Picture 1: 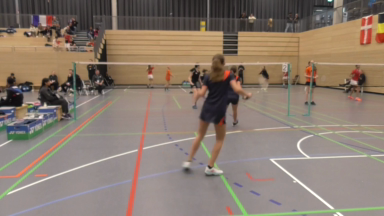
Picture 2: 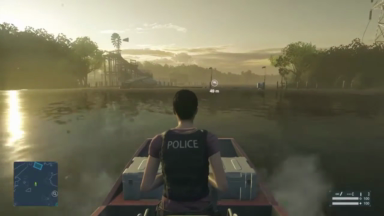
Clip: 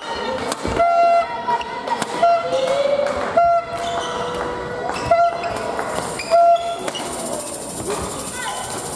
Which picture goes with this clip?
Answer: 1